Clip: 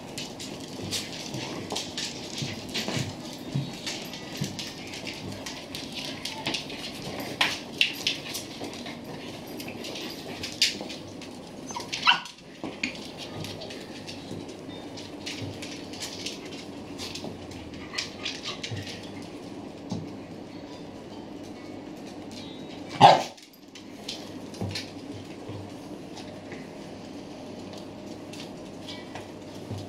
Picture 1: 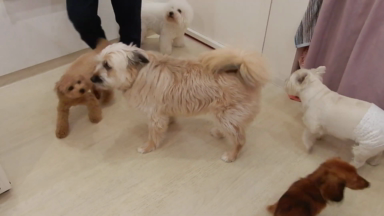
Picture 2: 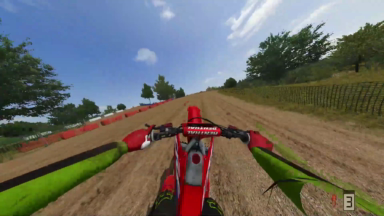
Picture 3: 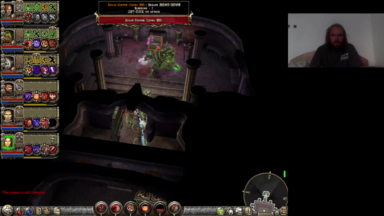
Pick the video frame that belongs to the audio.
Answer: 1